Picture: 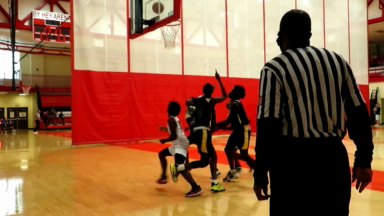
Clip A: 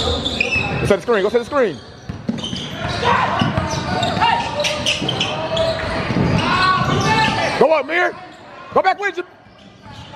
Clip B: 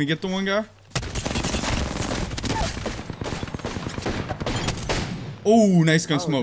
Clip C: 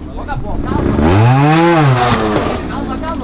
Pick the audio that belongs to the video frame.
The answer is A